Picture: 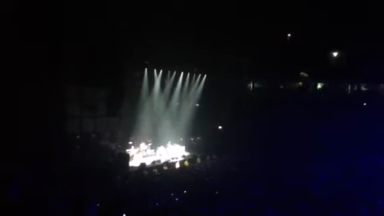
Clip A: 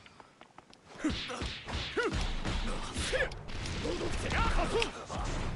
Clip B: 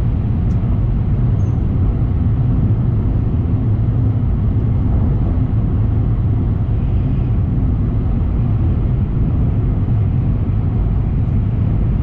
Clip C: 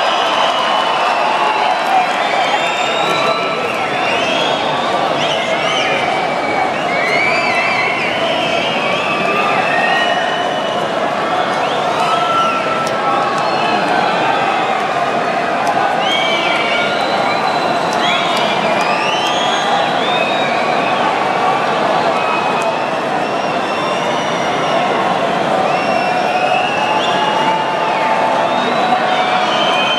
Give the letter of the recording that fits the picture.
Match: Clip C